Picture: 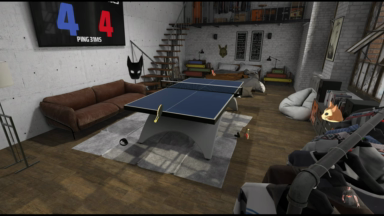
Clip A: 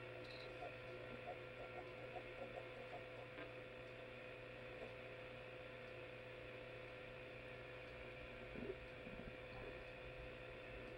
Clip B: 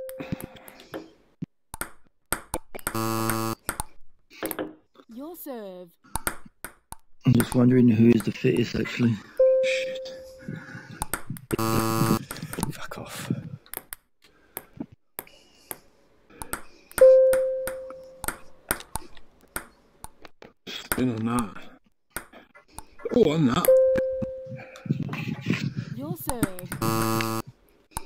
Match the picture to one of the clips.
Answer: B